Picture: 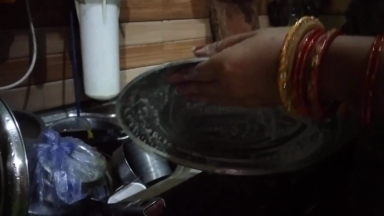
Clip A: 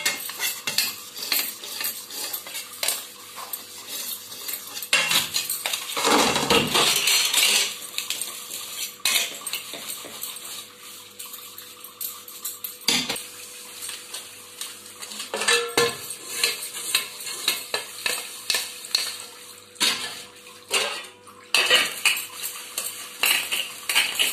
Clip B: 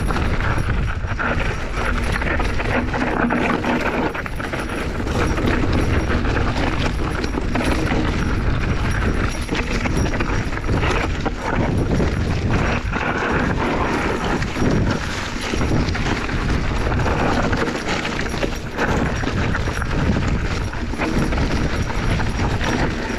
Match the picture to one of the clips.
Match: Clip A